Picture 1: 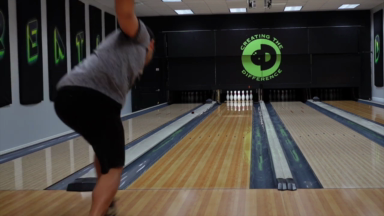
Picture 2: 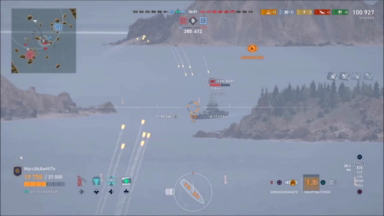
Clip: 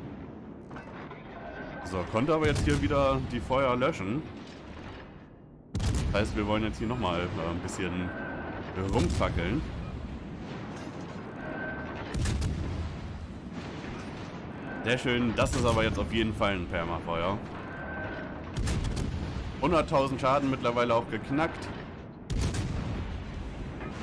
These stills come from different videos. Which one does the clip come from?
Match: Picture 2